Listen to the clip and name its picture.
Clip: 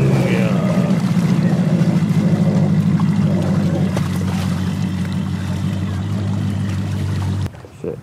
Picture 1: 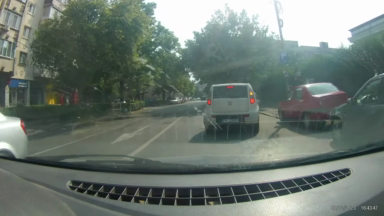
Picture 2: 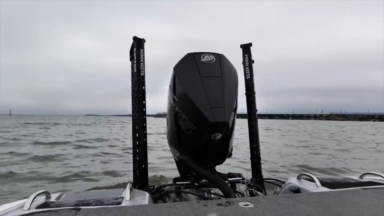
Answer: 2